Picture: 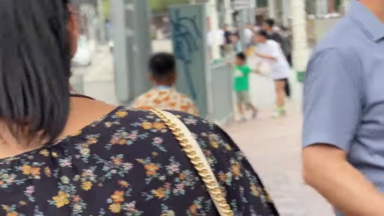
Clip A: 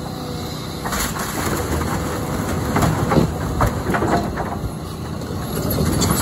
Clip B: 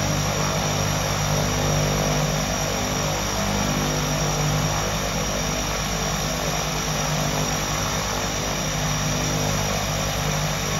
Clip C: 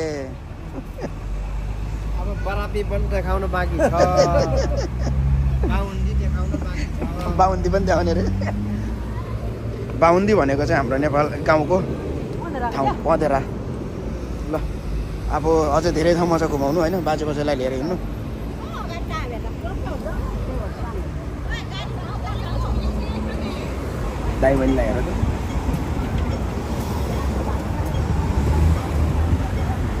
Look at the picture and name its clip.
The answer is C